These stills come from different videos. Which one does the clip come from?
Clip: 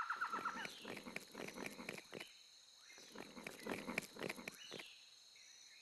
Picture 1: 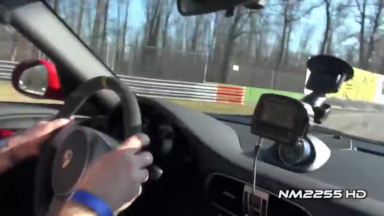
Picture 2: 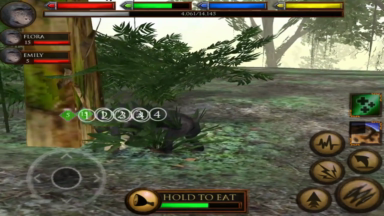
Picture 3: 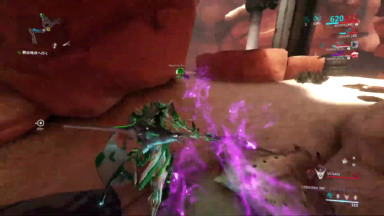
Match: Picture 2